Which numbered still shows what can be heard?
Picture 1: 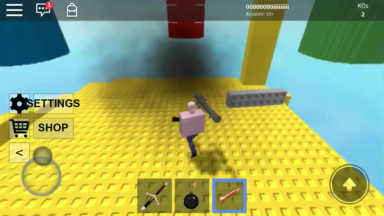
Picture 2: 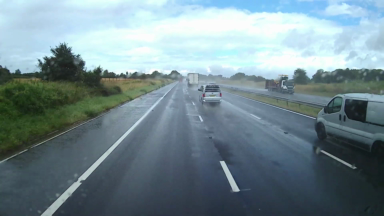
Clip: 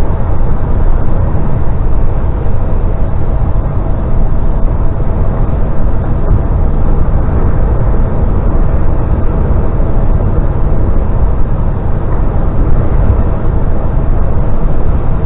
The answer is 2